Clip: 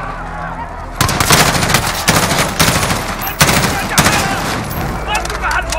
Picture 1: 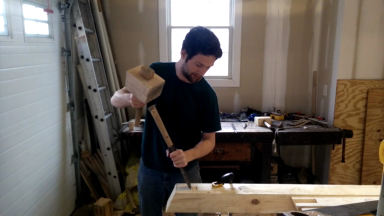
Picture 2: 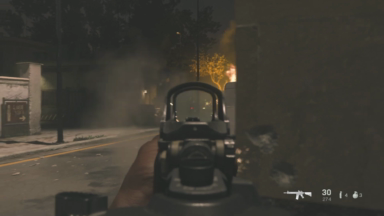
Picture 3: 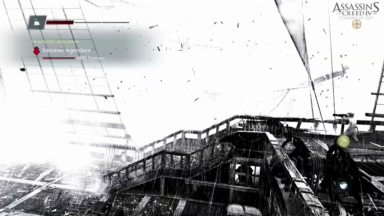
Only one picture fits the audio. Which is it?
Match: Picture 2